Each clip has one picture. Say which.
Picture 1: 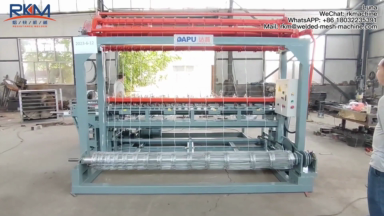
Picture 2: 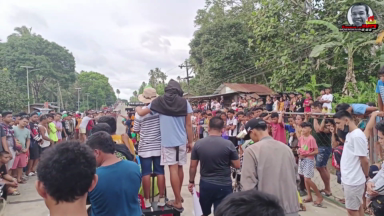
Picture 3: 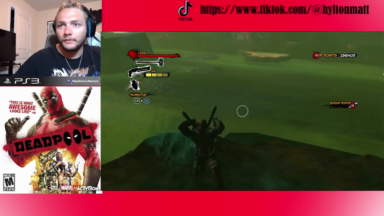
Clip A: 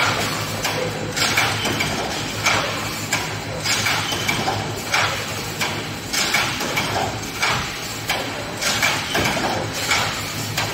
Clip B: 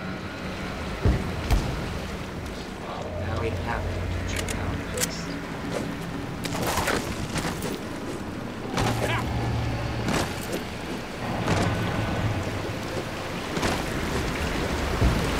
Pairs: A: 1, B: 3